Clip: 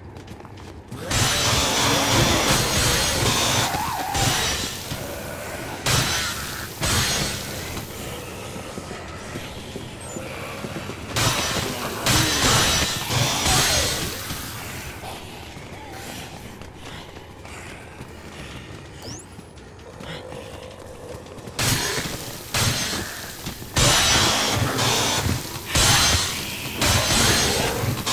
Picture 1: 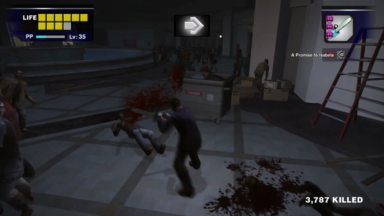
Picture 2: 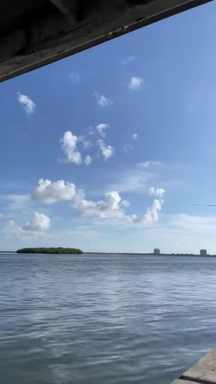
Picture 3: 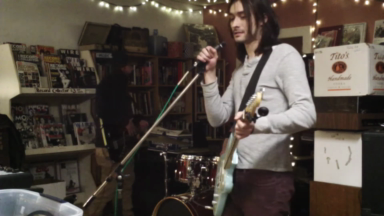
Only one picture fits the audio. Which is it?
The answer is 1